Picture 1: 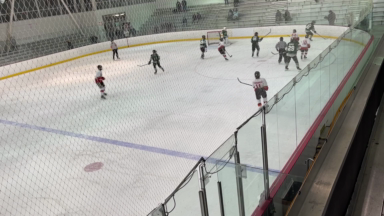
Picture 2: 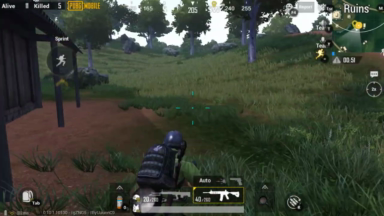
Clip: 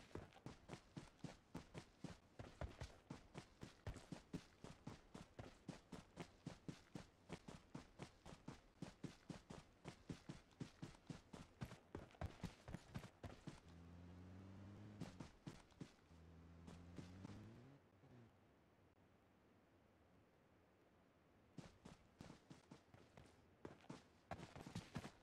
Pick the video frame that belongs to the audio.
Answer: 2